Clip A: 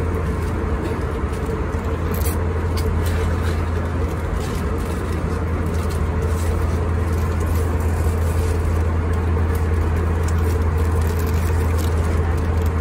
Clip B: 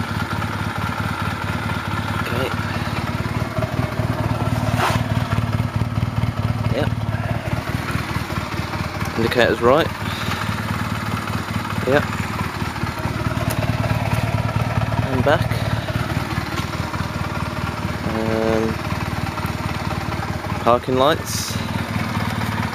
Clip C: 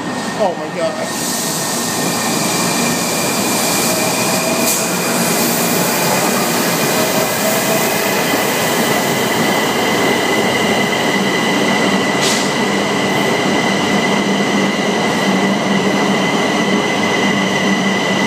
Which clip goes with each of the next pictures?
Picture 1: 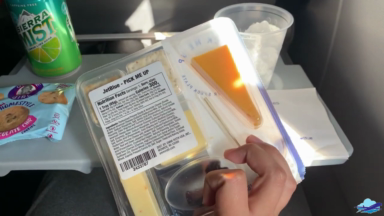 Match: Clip A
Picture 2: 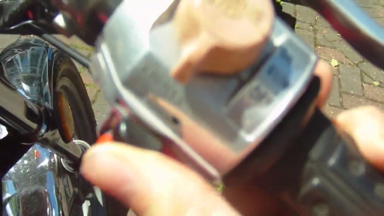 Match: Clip B